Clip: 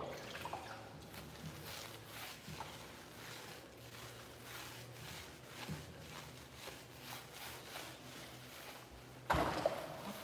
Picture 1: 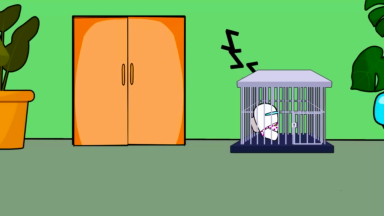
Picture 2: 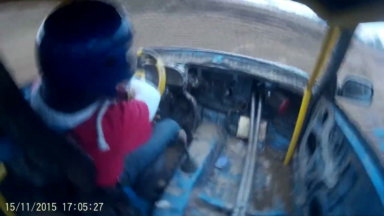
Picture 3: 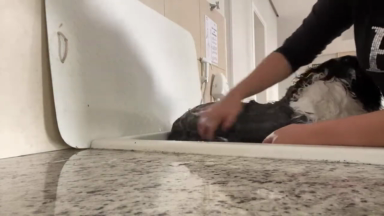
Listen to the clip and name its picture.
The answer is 3